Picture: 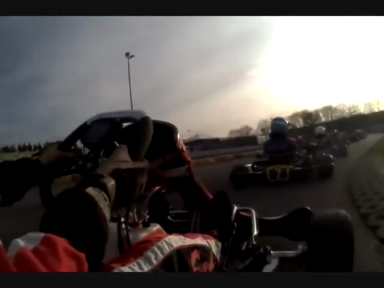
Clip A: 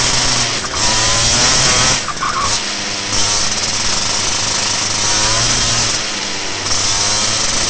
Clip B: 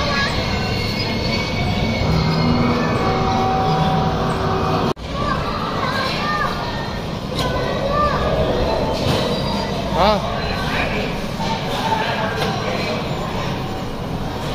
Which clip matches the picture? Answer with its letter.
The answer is A